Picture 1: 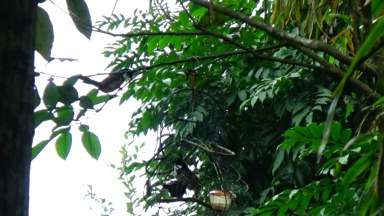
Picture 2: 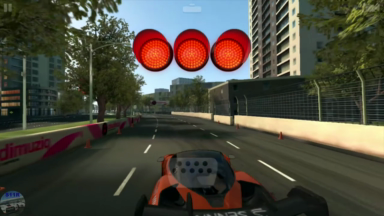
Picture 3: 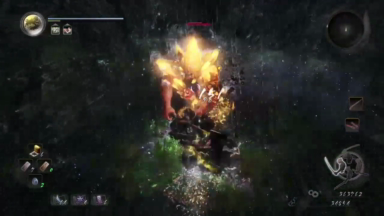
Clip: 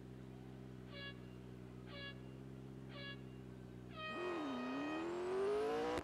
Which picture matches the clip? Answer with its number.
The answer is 2